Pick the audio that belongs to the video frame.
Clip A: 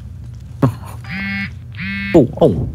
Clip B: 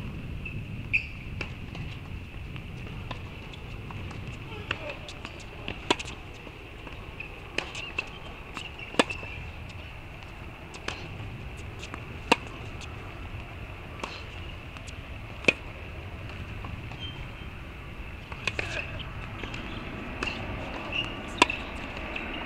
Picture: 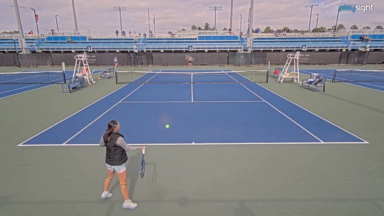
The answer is B